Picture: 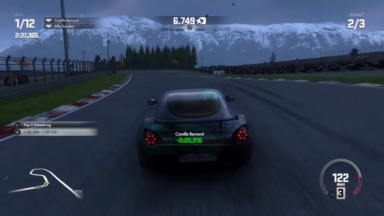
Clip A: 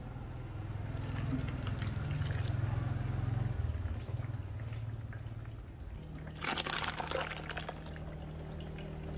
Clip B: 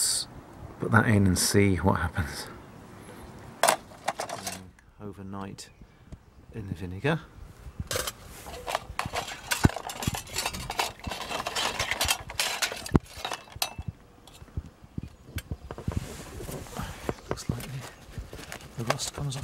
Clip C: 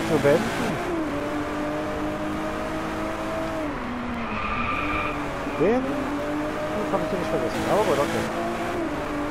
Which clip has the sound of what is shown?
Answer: C